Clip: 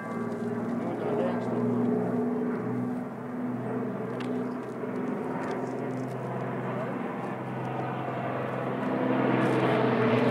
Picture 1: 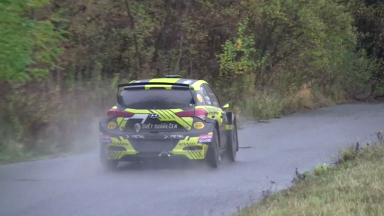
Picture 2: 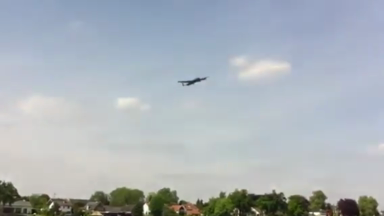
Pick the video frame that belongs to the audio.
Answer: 2